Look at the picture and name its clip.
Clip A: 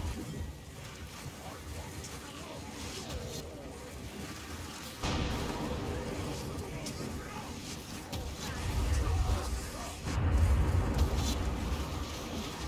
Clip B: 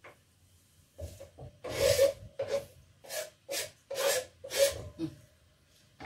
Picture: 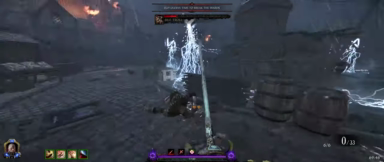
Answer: A